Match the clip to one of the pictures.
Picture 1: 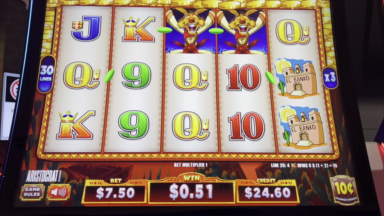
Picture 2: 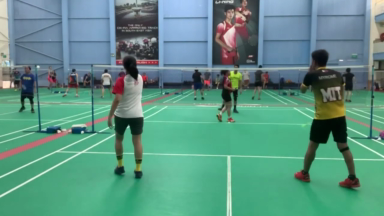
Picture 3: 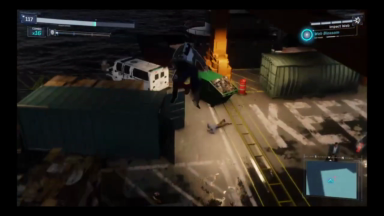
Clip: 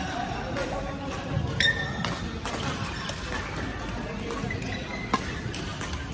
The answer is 2